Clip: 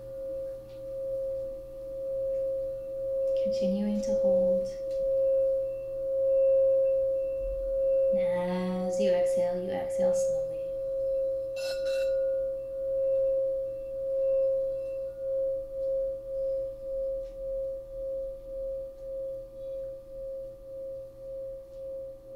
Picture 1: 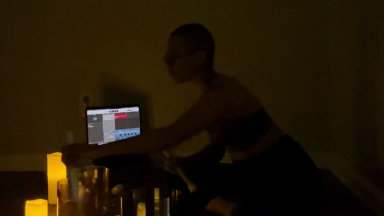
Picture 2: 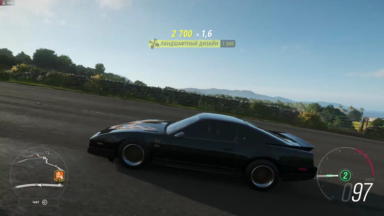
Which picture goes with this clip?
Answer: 1